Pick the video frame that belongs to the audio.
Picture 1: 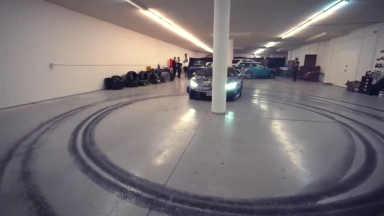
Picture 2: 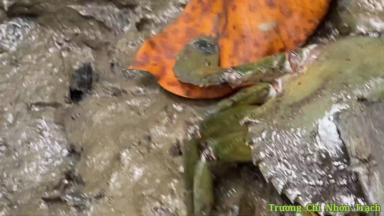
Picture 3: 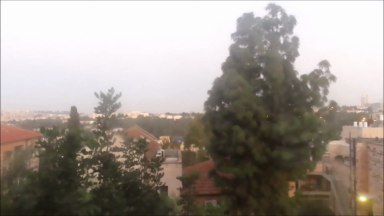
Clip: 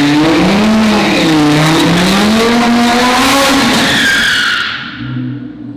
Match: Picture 1